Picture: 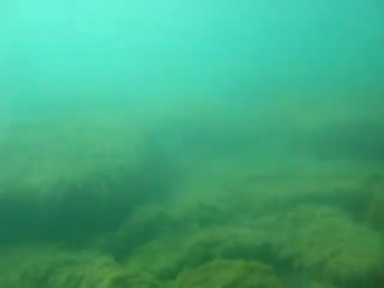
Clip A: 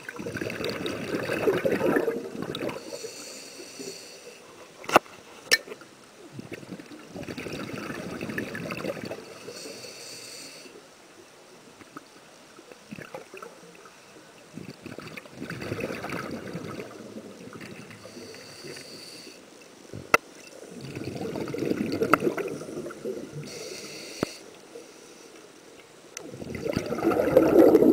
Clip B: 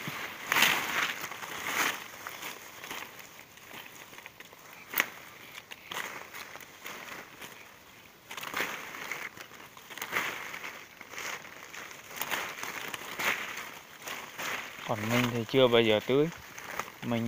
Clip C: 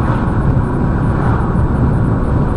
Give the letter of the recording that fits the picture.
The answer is A